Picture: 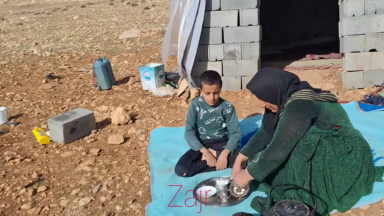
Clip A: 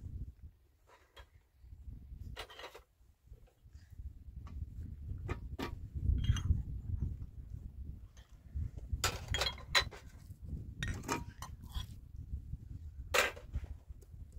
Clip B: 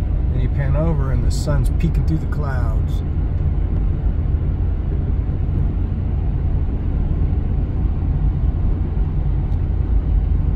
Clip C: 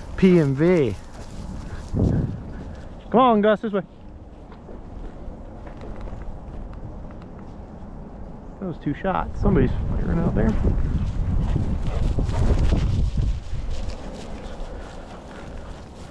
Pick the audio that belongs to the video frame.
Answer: A